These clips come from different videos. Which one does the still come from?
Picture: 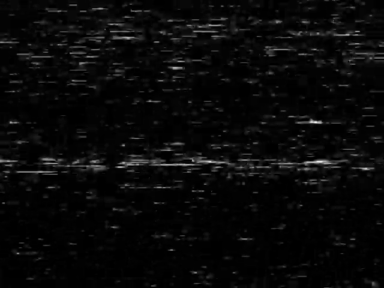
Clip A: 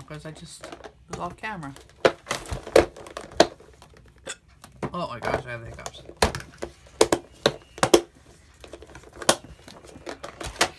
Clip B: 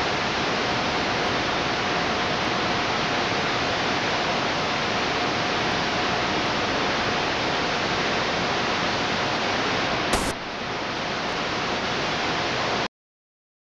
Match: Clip B